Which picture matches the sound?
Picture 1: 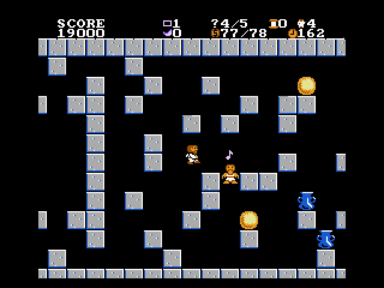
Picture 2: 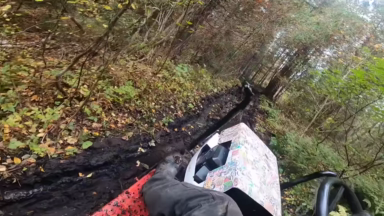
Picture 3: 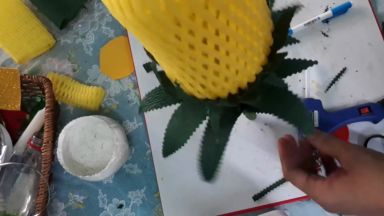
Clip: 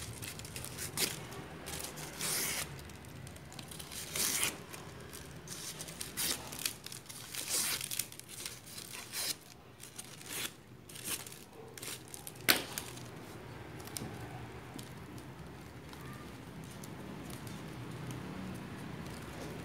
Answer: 3